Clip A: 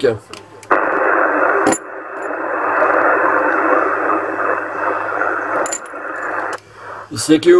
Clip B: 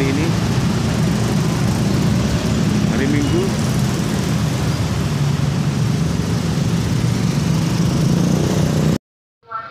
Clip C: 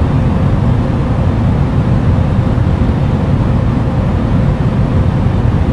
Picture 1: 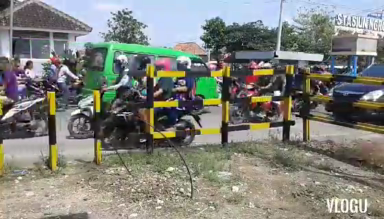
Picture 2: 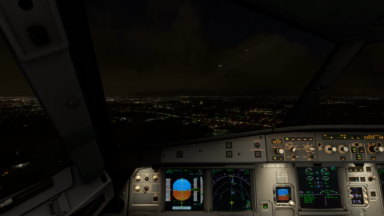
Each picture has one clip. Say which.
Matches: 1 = B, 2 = C